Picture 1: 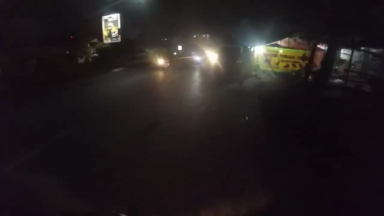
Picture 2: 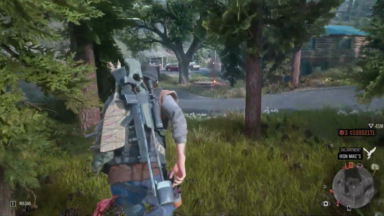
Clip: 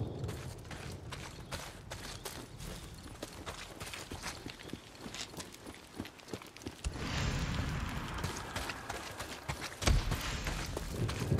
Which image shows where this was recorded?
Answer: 2